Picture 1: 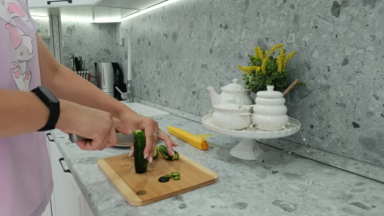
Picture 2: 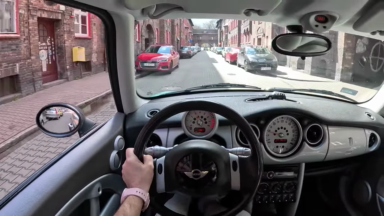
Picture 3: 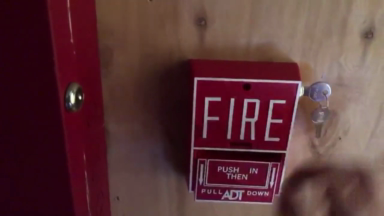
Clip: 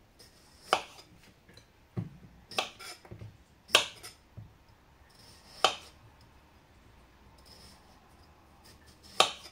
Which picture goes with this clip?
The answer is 1